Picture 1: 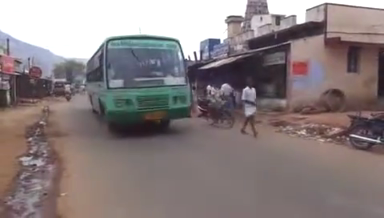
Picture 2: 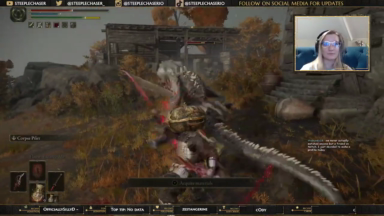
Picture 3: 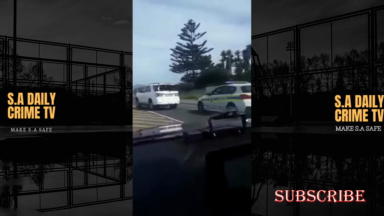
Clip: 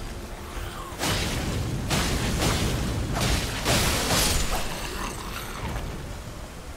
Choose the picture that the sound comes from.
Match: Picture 2